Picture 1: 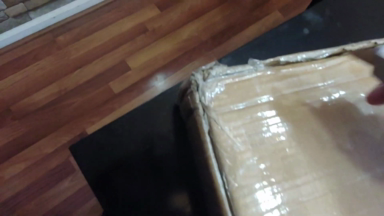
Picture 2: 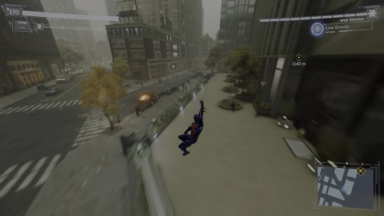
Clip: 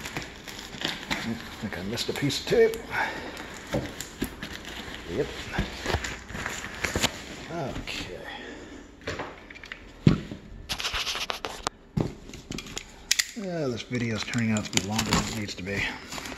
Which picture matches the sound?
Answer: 1